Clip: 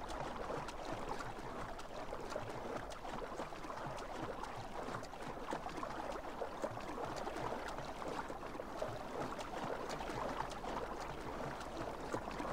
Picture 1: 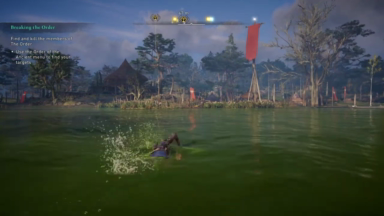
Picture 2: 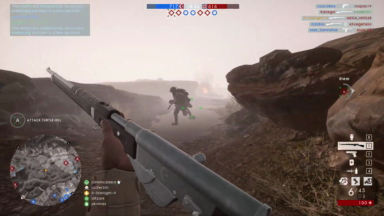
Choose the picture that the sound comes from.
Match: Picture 1